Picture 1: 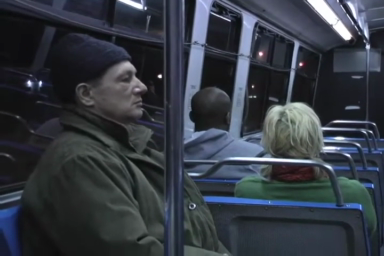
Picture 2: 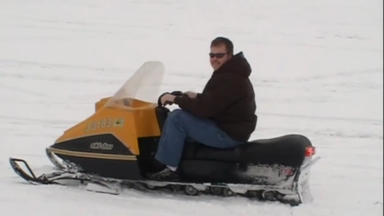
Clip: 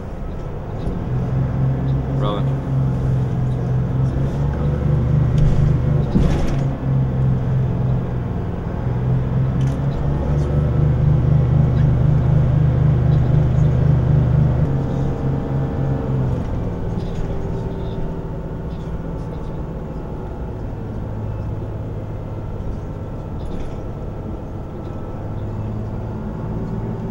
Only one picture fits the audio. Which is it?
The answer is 1